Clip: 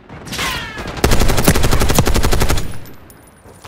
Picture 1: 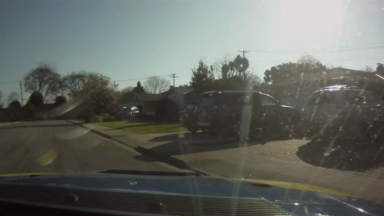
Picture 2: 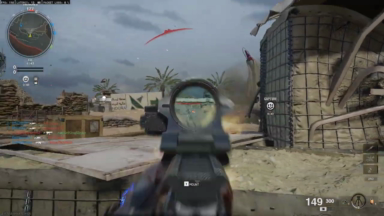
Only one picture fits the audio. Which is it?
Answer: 2